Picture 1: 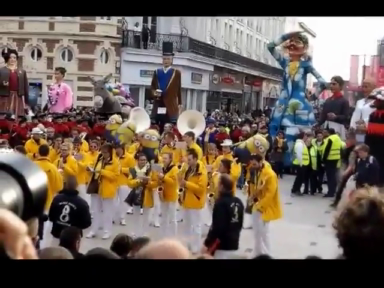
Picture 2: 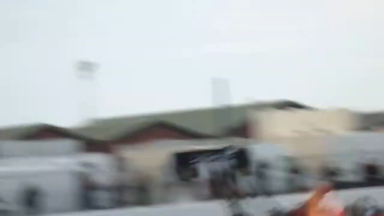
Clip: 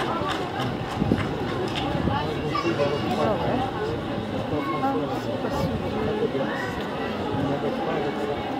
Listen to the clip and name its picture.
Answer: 1